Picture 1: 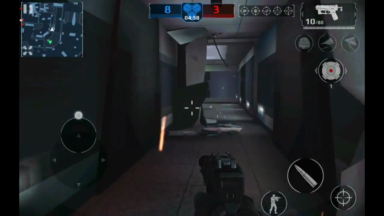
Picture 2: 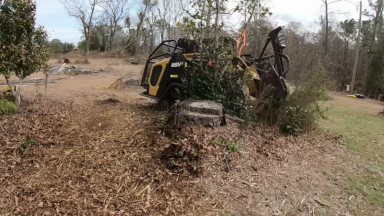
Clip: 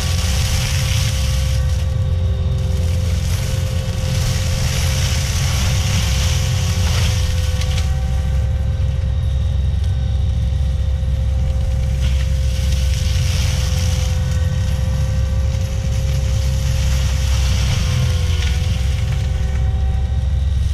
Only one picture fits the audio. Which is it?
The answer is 2